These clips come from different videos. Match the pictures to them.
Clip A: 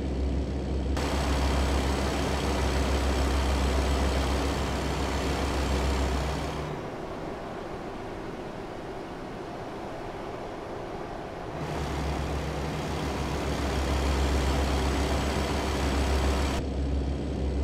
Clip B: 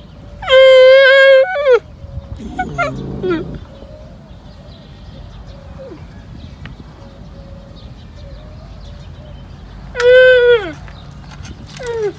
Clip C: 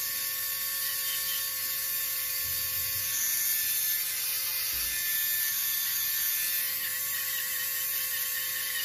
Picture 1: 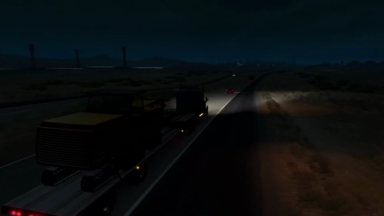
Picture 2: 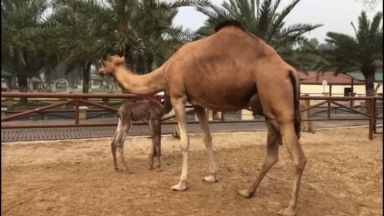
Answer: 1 A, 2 B